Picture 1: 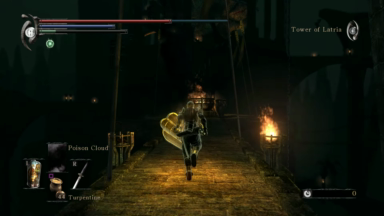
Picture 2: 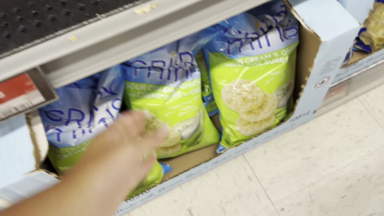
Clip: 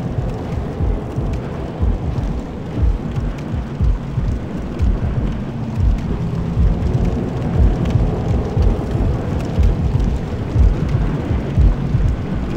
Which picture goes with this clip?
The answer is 1